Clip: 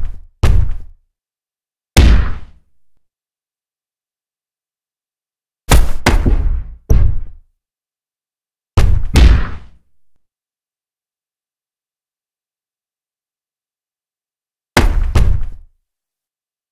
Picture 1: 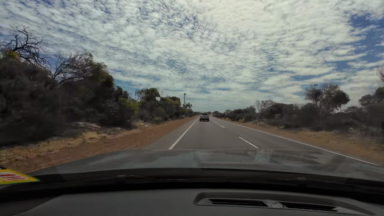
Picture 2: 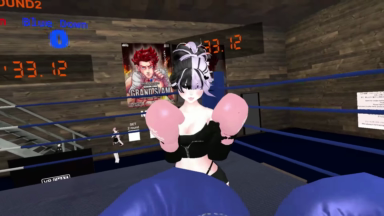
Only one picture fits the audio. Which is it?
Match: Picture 2